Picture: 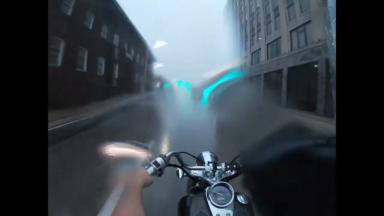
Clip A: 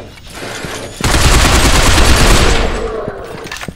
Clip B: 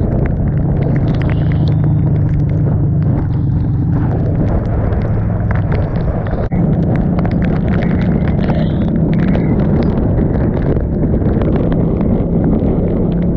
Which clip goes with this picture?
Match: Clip B